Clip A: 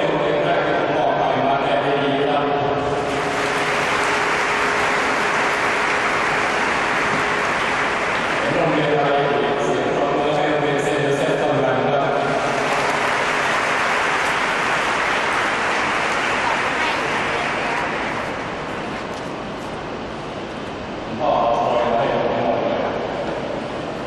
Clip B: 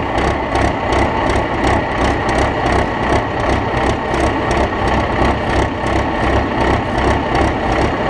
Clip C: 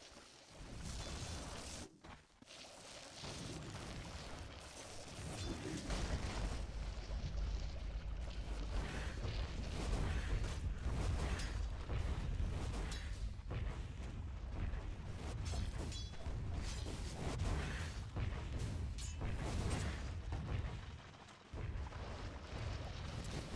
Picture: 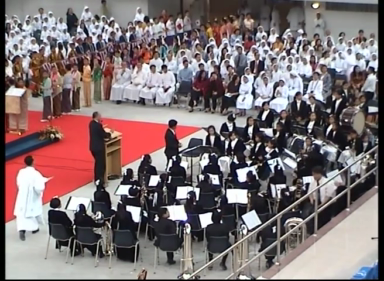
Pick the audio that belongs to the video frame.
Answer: A